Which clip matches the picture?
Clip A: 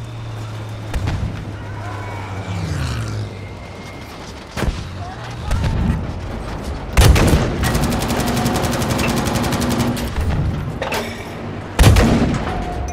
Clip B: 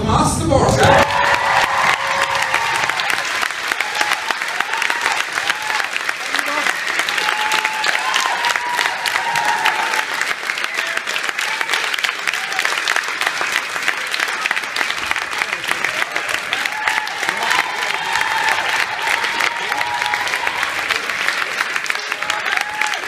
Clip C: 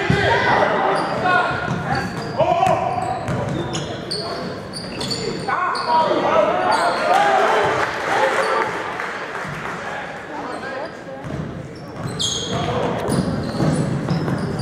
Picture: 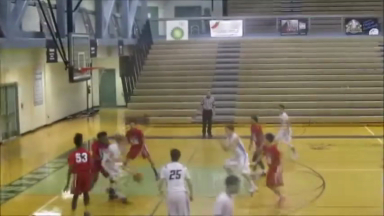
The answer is C